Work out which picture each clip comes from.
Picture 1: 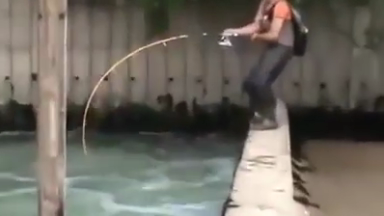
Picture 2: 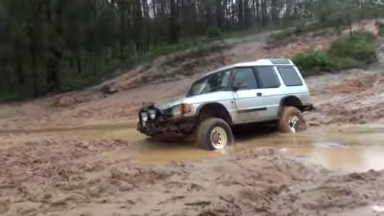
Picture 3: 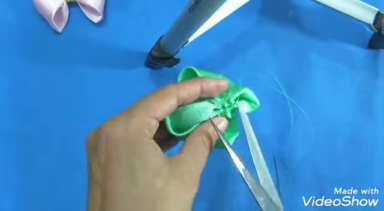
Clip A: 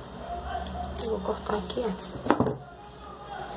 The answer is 3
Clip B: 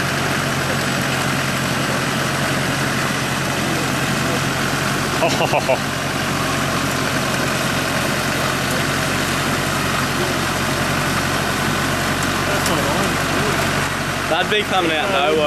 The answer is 2